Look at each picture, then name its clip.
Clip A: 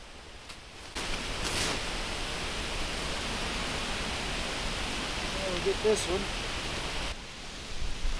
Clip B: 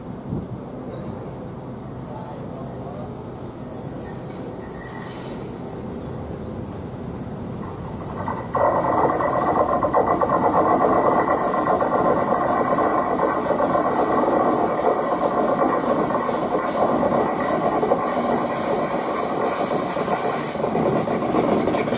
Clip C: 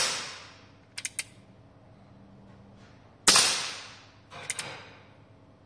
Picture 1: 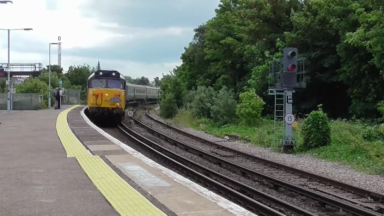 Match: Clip B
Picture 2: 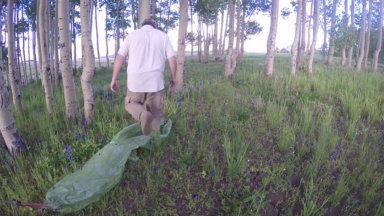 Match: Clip A